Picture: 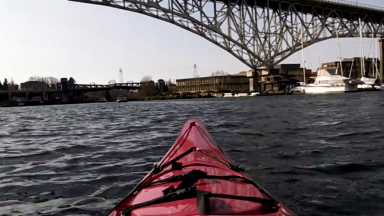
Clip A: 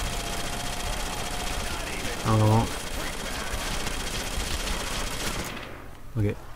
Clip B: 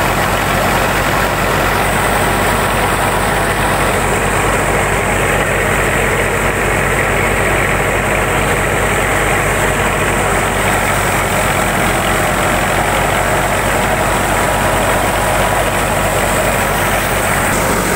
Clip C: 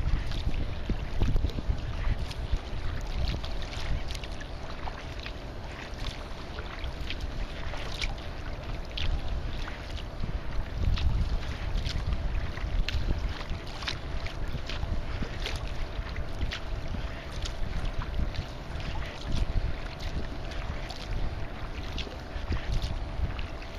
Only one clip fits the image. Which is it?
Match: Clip C